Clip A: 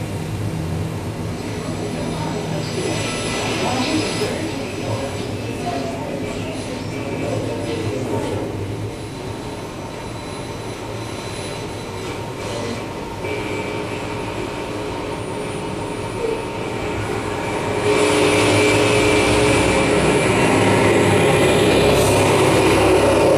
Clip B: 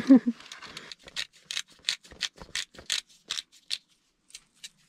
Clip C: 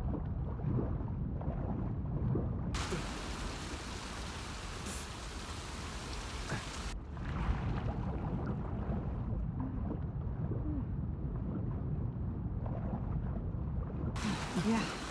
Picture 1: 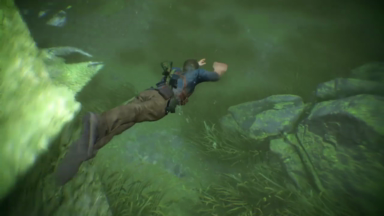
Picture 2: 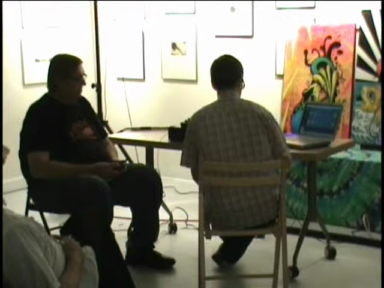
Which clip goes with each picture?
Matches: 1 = C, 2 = A